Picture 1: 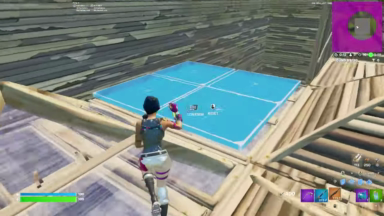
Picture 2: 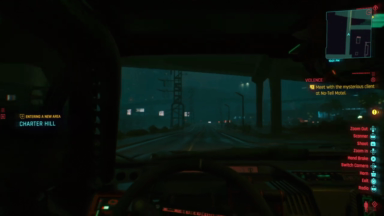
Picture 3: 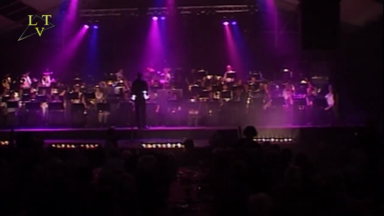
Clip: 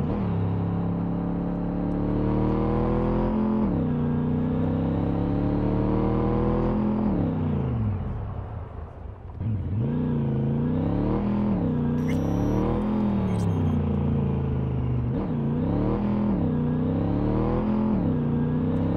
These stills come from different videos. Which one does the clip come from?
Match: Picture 2